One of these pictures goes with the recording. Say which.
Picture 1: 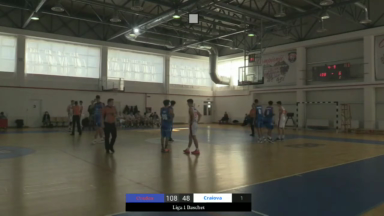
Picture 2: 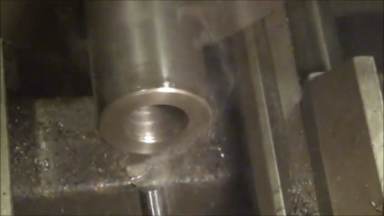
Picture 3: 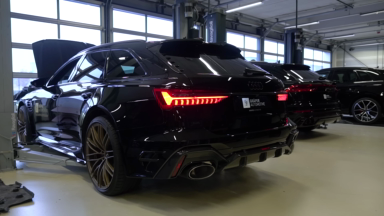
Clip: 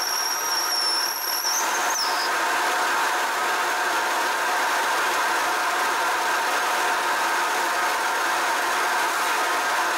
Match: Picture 2